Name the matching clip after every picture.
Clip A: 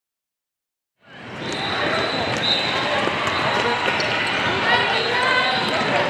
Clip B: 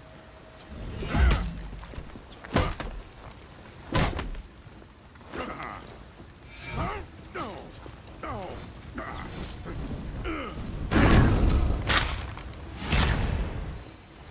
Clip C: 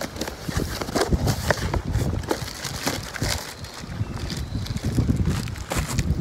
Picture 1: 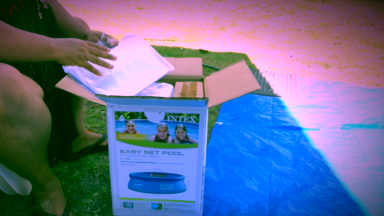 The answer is C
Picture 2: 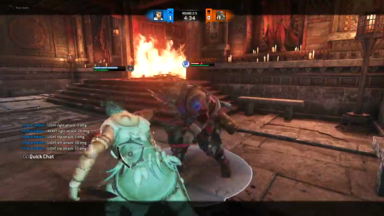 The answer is B